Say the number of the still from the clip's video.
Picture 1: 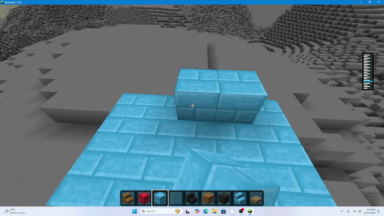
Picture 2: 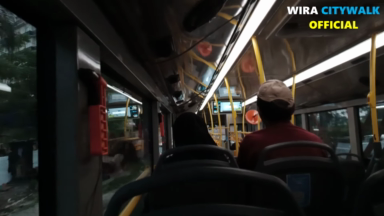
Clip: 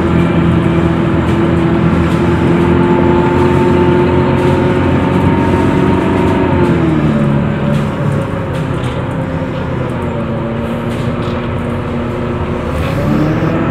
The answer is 2